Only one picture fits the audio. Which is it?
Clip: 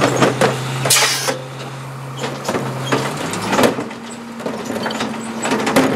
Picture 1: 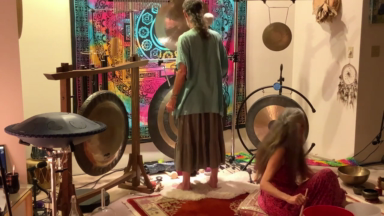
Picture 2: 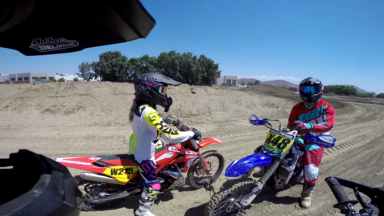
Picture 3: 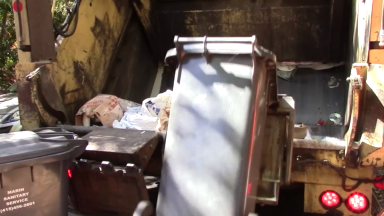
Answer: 3